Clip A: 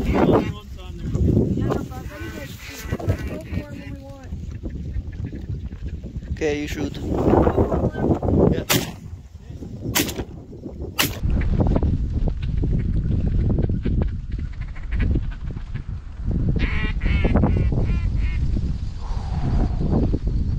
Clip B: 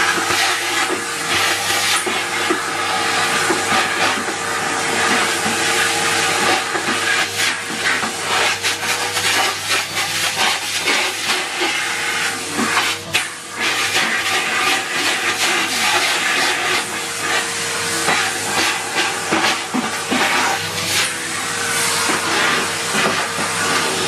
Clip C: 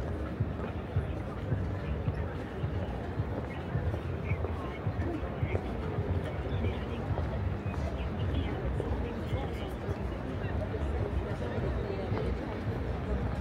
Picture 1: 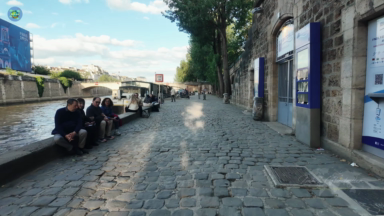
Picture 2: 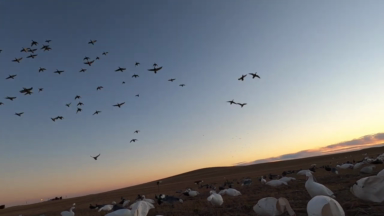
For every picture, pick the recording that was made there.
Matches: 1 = C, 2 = A